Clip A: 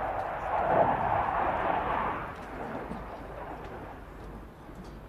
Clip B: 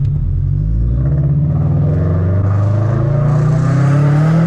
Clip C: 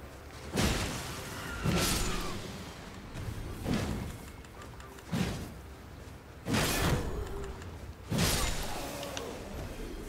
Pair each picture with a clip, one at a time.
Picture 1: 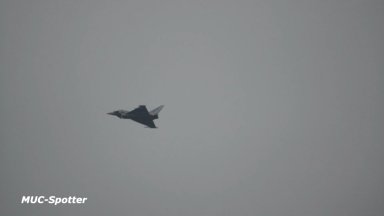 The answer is A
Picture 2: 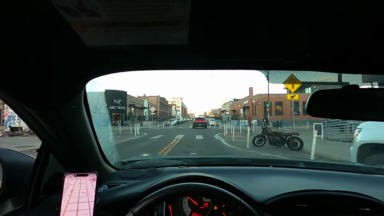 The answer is B